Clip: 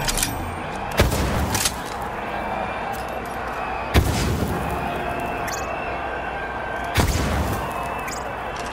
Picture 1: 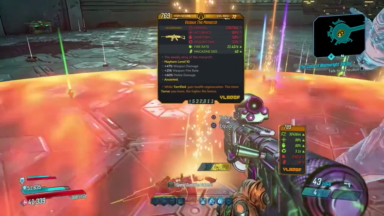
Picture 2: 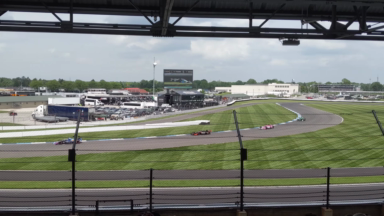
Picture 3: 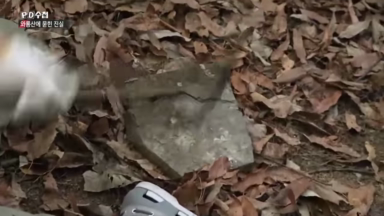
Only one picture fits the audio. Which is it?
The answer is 1